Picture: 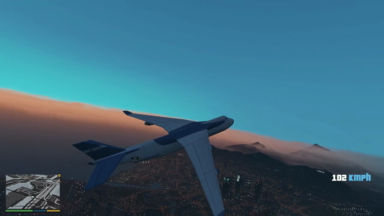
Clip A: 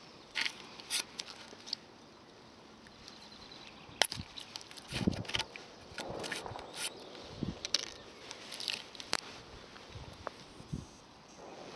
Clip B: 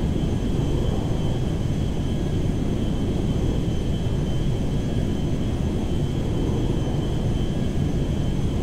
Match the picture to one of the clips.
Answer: B